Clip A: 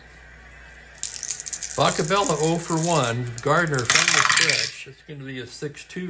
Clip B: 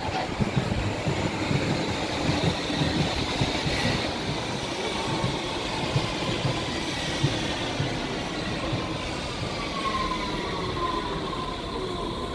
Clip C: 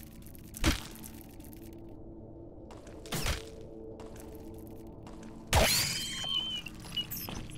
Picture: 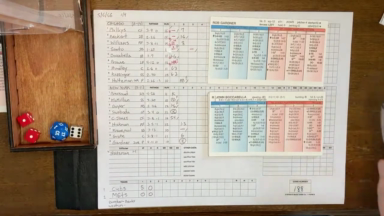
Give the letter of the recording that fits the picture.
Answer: A